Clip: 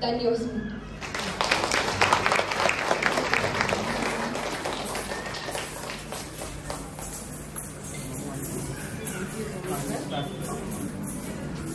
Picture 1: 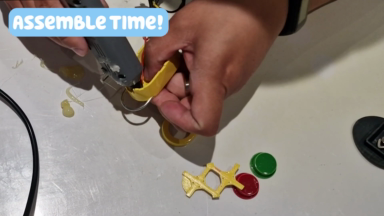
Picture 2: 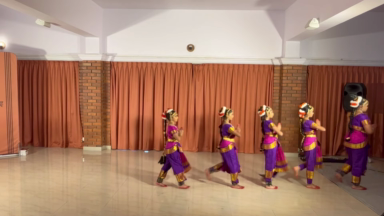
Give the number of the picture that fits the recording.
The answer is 2